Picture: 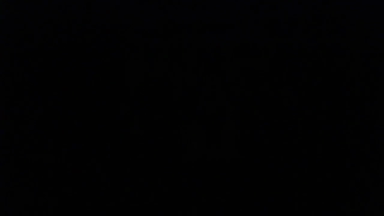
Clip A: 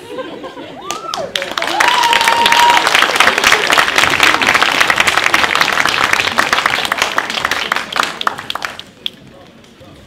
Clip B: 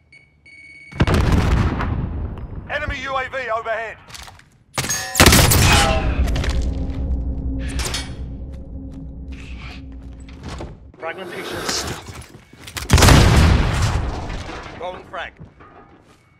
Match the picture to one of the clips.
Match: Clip A